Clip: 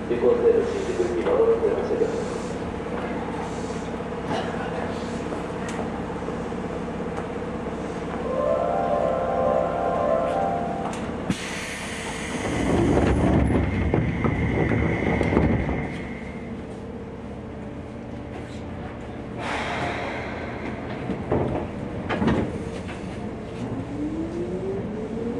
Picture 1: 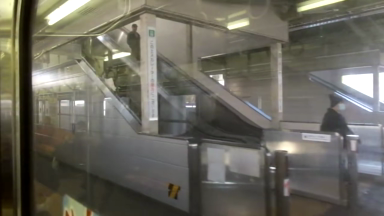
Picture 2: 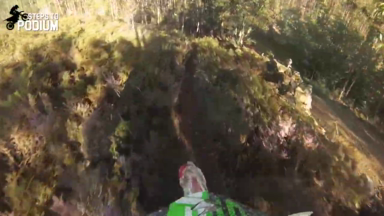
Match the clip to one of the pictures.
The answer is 1